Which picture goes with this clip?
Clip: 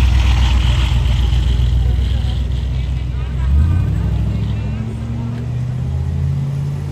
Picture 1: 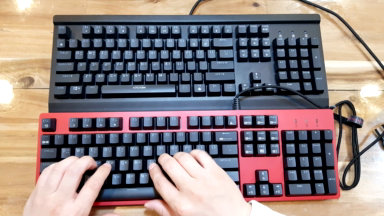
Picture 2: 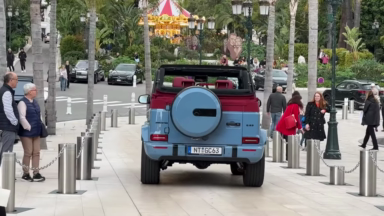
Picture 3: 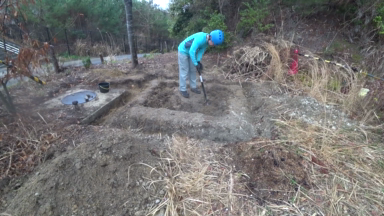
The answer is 2